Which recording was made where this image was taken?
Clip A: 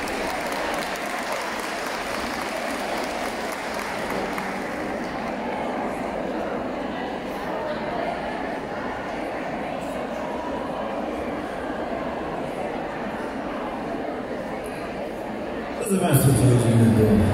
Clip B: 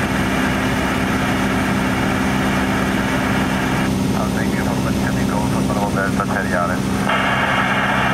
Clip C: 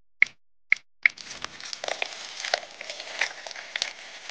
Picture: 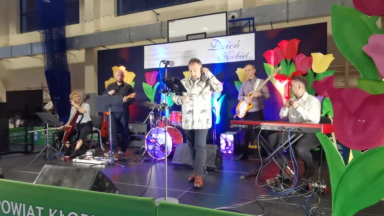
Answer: A